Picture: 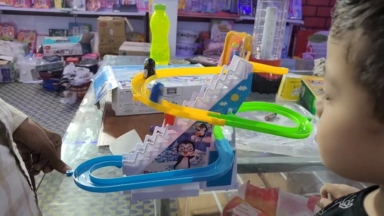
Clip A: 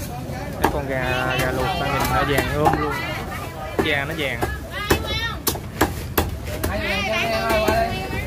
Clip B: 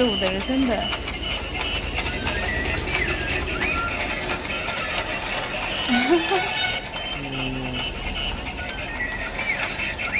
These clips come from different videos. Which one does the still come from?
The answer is B